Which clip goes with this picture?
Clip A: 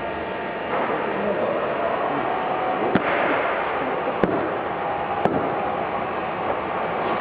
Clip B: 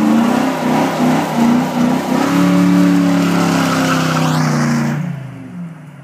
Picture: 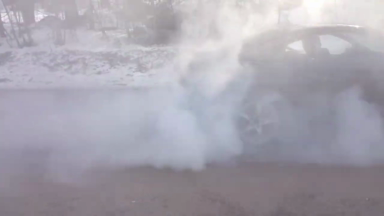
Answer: B